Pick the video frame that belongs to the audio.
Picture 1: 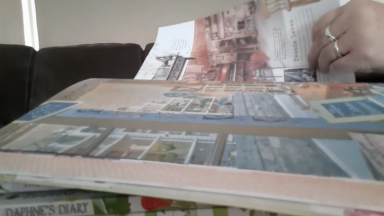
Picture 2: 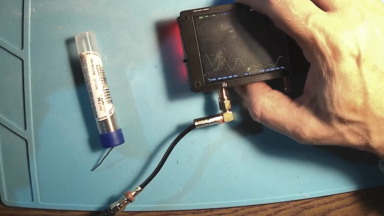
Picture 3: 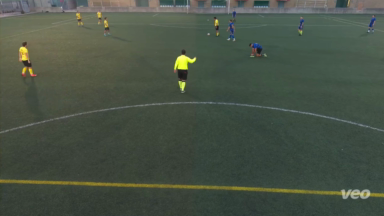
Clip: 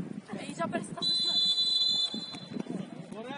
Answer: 3